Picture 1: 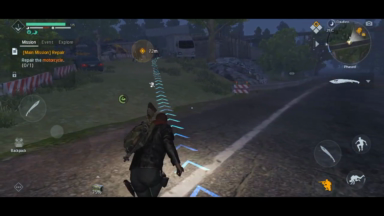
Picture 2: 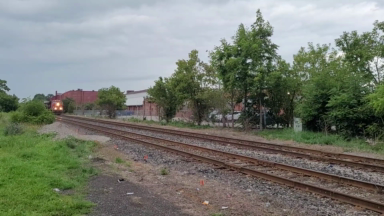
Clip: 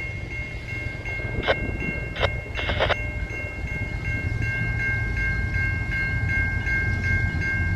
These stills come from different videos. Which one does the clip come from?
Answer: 2